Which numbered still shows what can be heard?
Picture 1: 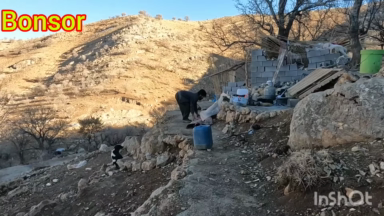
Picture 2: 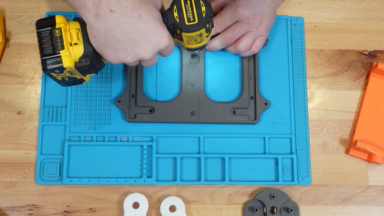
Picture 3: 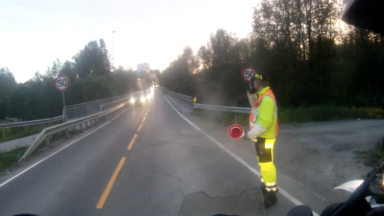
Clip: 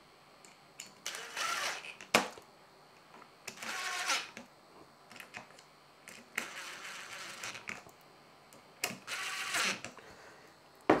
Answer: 2